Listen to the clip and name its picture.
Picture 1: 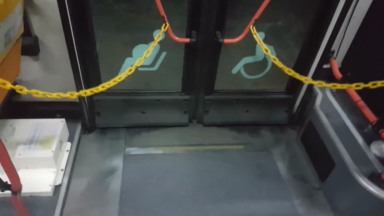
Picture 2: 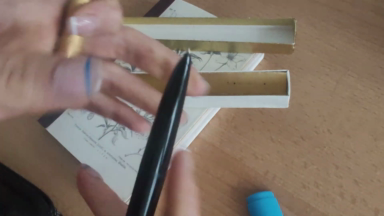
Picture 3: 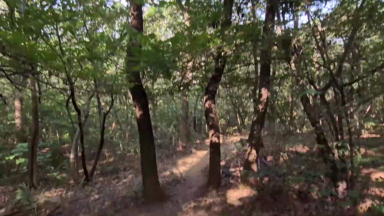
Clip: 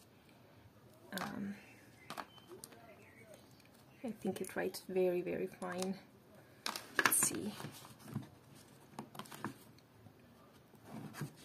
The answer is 2